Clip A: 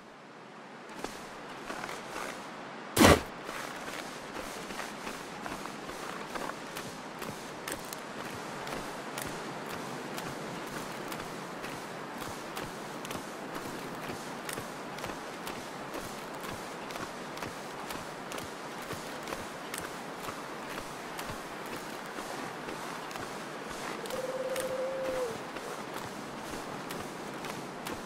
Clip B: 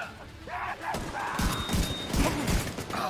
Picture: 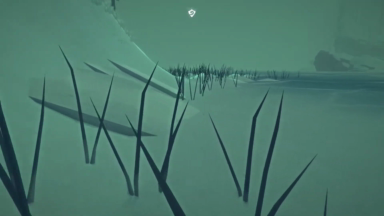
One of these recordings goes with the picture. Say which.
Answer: A